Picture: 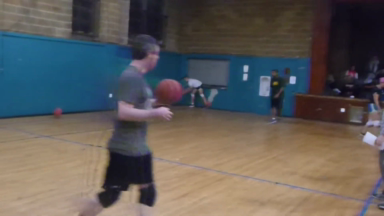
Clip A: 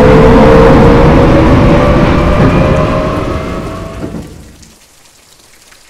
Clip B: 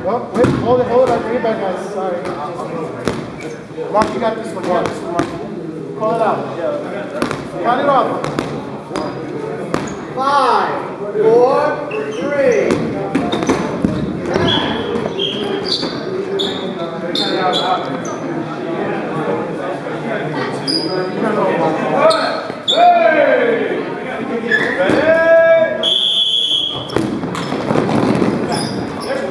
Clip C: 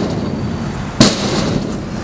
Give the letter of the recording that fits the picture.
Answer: B